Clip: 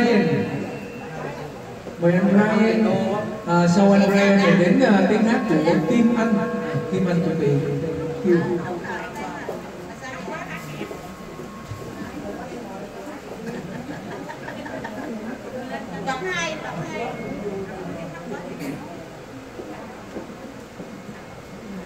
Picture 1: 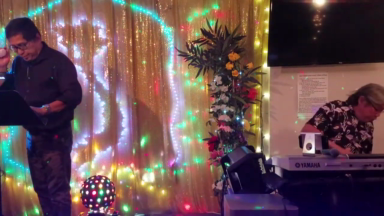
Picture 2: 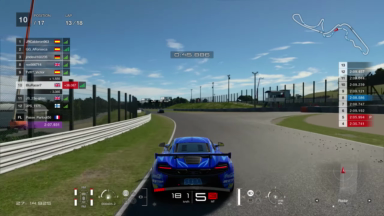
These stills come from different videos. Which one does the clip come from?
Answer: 1